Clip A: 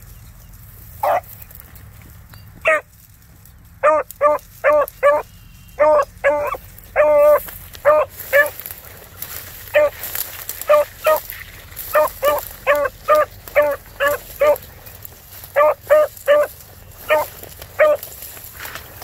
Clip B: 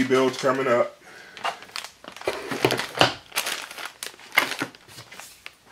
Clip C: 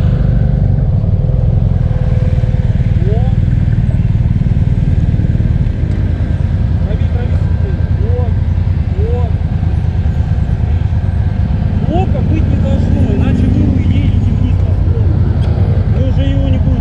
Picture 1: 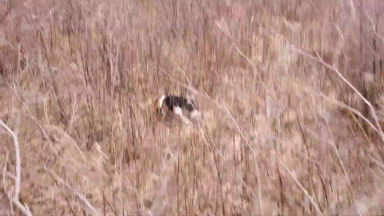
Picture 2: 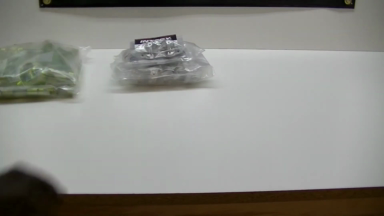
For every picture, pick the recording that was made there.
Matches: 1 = A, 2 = B